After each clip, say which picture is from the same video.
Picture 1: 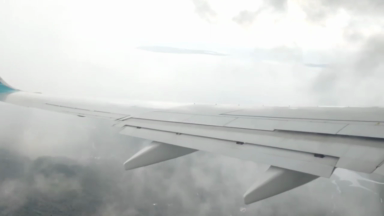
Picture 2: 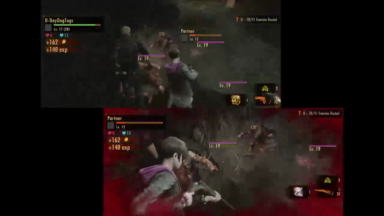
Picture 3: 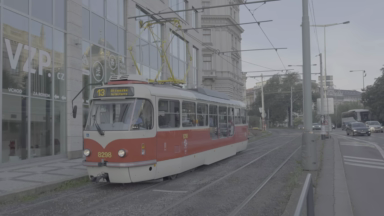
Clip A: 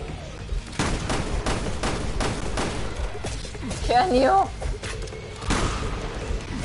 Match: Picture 2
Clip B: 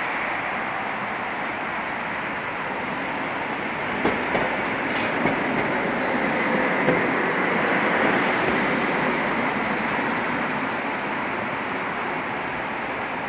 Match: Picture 3